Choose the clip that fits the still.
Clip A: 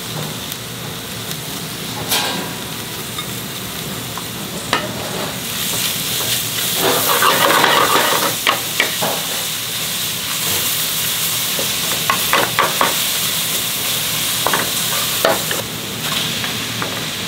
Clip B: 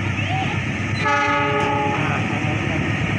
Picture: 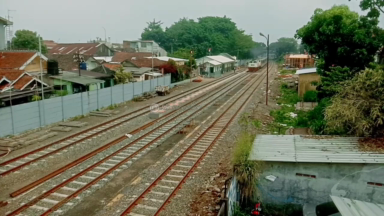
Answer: B